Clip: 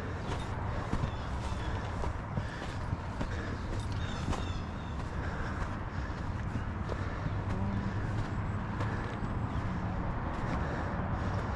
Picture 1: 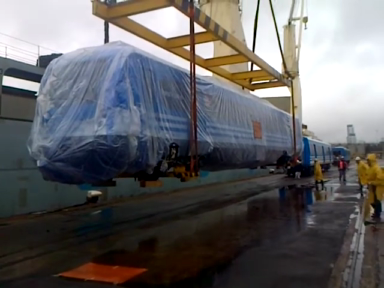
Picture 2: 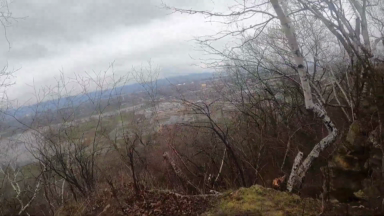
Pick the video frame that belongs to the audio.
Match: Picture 2